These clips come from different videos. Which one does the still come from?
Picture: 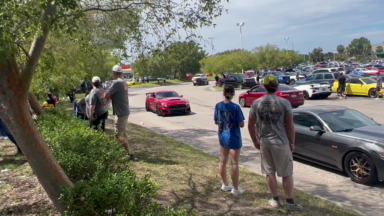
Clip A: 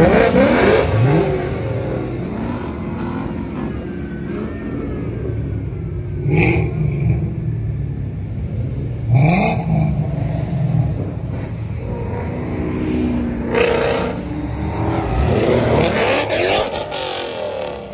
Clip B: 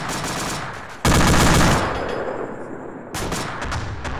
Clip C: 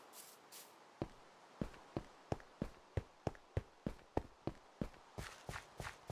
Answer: A